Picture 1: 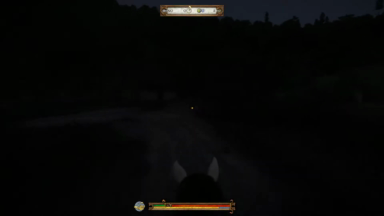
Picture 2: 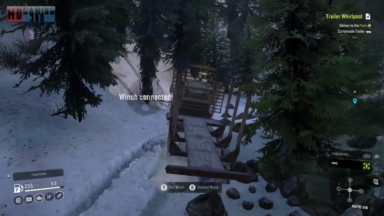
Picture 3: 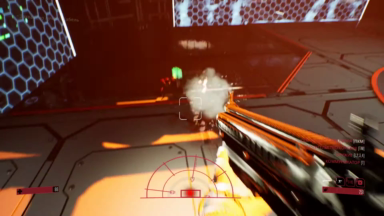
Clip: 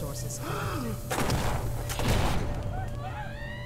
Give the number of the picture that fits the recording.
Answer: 3